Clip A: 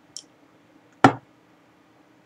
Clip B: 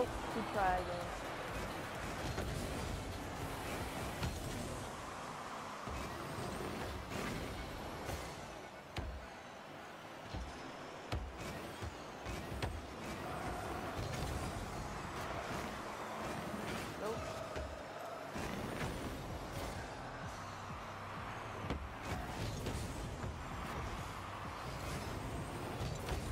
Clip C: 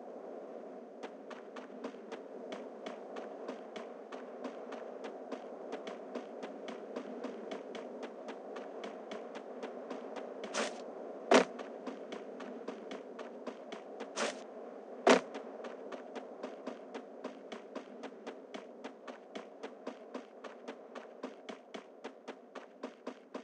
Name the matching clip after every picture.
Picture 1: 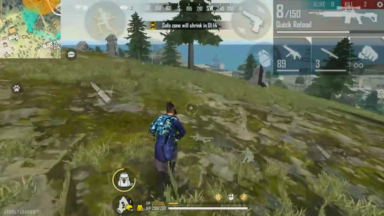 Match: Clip C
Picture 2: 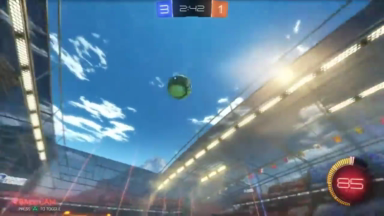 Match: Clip B